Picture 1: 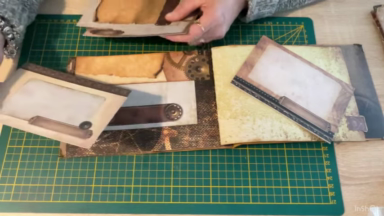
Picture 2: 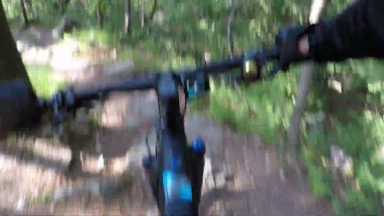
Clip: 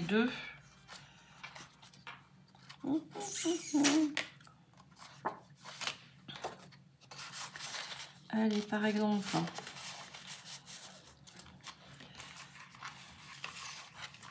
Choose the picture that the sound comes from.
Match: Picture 1